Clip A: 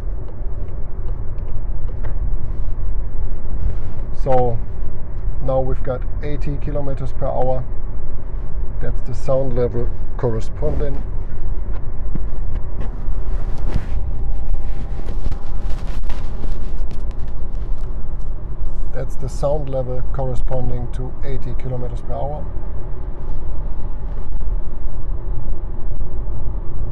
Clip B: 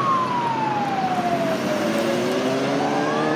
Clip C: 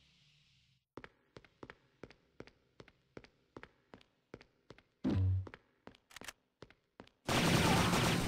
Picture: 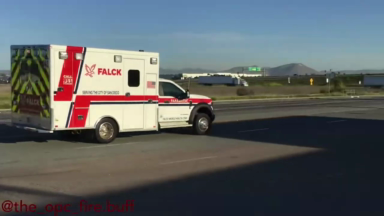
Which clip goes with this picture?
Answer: B